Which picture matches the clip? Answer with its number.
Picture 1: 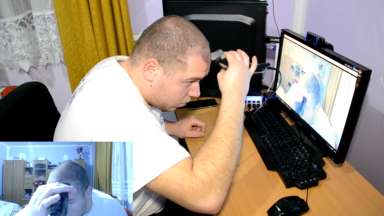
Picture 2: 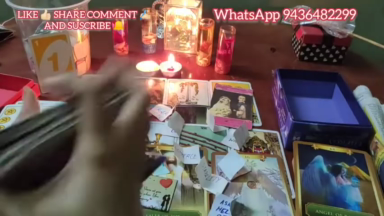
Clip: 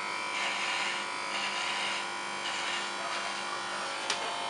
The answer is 1